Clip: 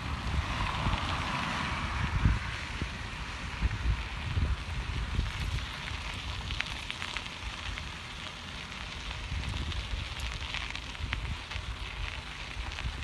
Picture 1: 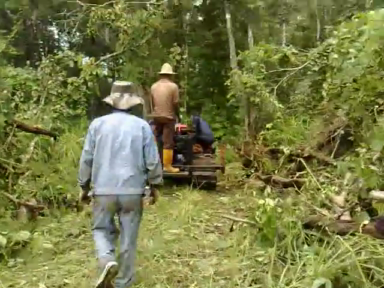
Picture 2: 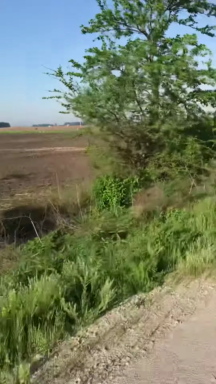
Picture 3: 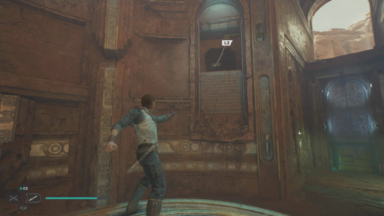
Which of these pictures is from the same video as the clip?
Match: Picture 2